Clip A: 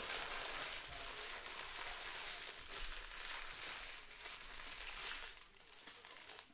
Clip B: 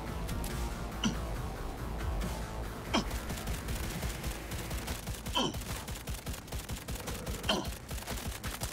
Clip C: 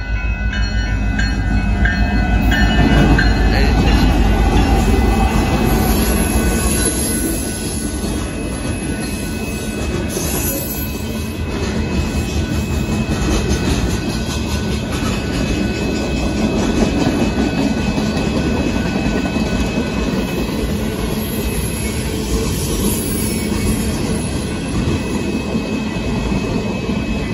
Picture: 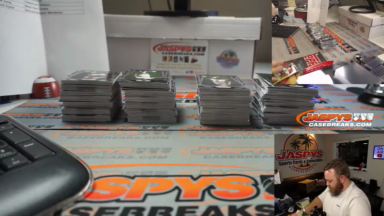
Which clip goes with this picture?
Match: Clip A